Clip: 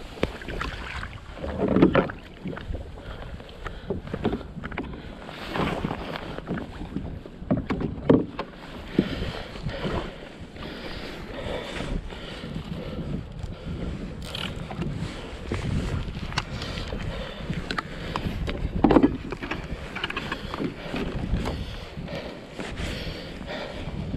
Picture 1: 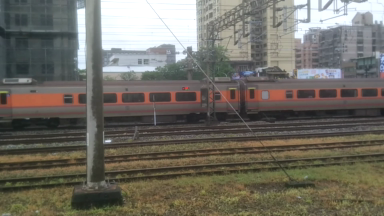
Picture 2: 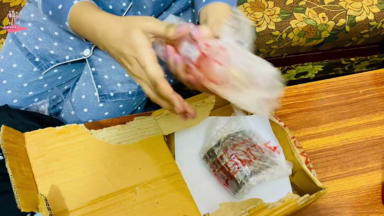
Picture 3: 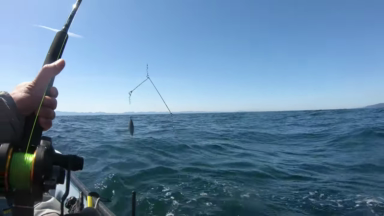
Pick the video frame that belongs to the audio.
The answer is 3